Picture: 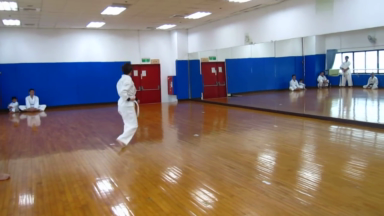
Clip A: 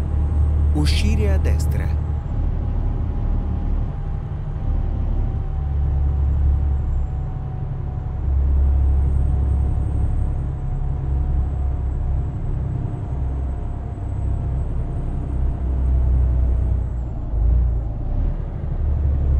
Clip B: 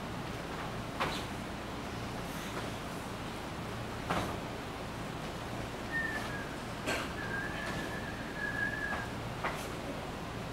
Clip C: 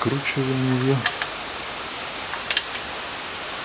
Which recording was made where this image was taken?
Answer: B